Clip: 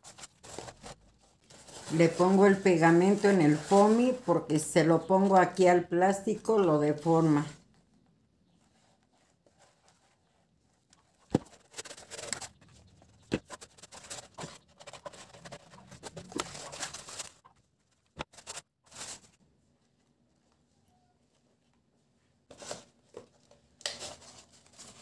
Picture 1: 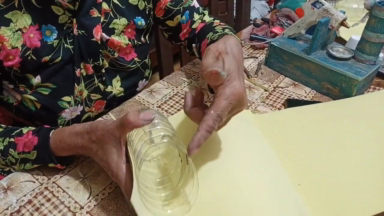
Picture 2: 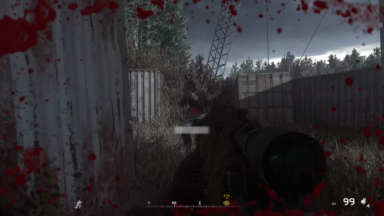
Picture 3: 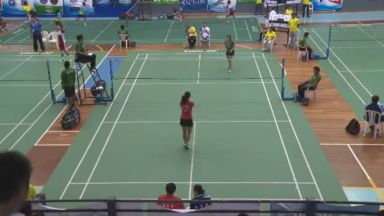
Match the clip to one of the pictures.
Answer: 1